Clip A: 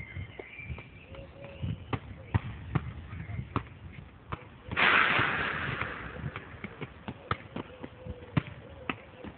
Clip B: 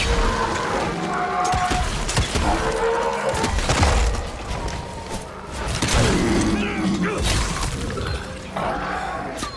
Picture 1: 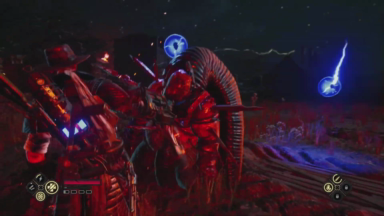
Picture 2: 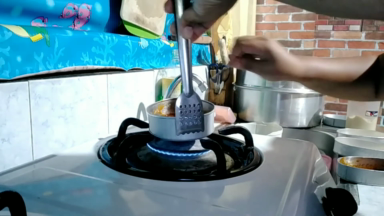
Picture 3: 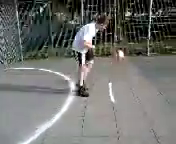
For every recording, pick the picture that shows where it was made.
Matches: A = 3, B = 1